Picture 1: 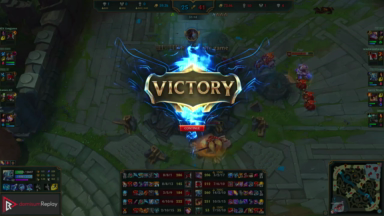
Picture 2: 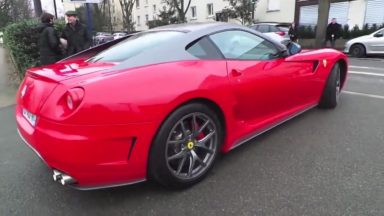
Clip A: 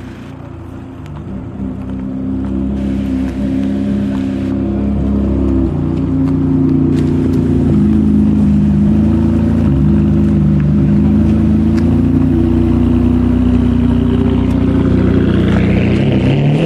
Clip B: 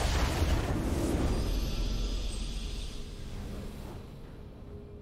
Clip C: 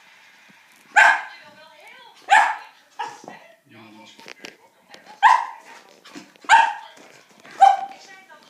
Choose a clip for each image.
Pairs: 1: B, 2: A